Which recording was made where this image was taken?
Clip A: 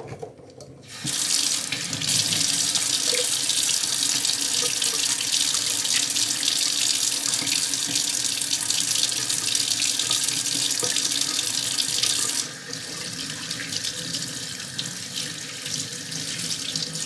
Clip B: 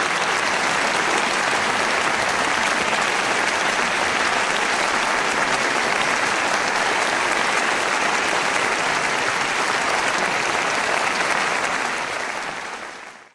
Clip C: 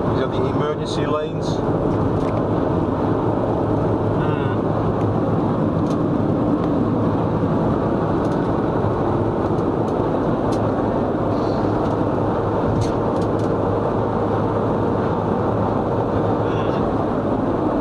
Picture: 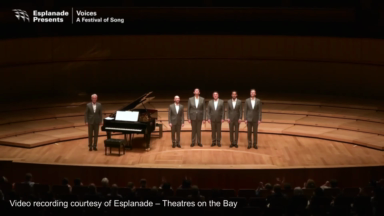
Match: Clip B